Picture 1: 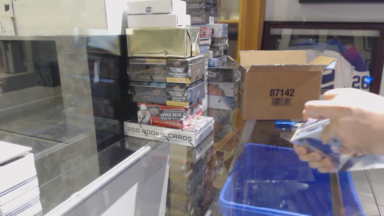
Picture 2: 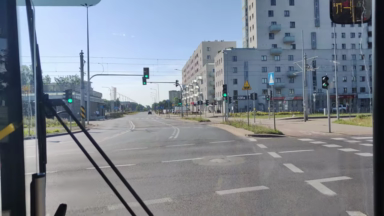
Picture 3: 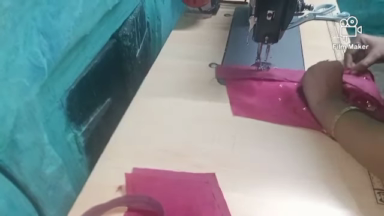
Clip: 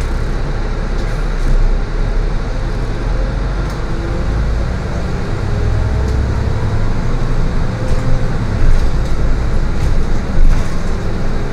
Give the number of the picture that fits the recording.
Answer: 2